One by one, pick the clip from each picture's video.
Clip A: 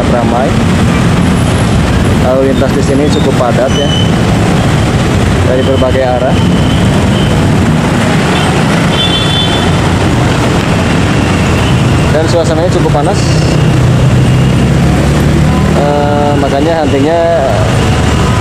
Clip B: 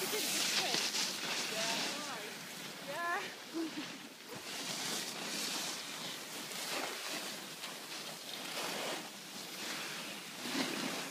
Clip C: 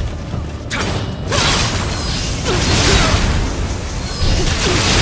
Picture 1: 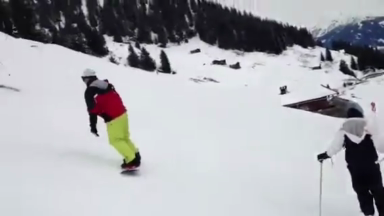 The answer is B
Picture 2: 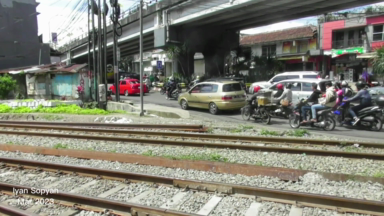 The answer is A